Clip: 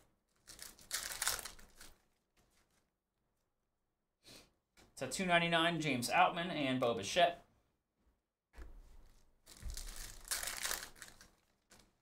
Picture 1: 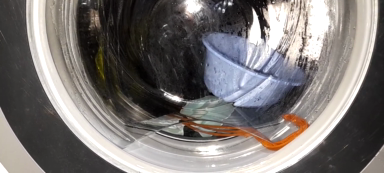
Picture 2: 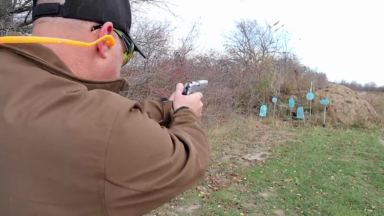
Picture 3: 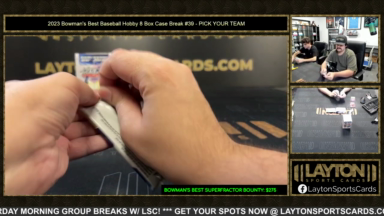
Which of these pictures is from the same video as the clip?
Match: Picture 3